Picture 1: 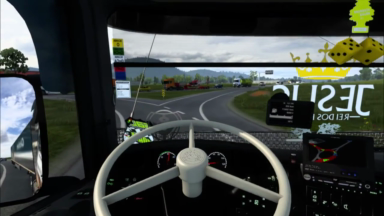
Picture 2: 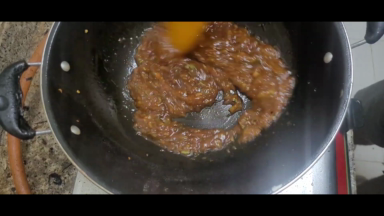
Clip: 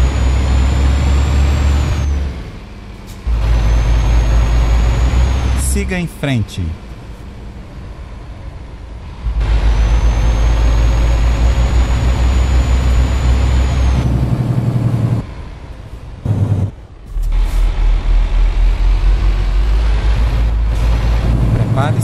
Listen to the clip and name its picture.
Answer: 1